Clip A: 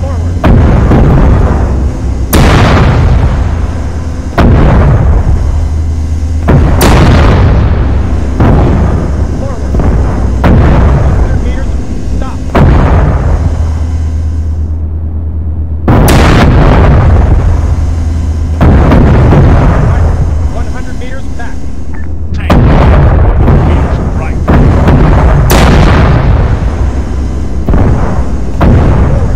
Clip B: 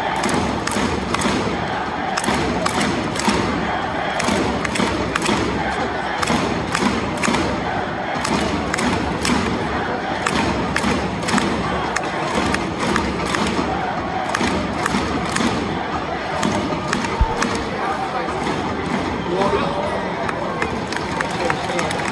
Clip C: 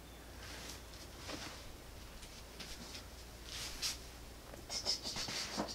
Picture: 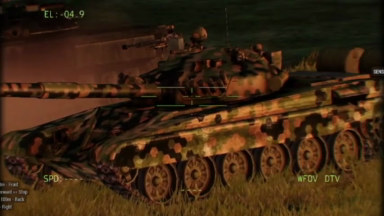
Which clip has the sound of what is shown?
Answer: A